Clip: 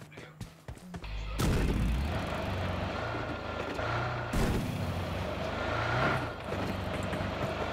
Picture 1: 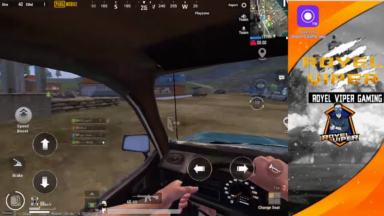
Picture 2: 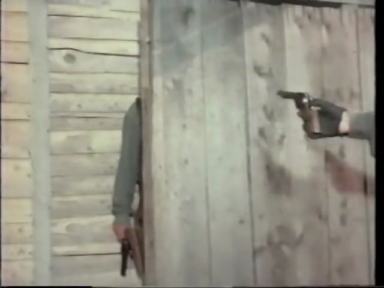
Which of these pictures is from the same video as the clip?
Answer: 1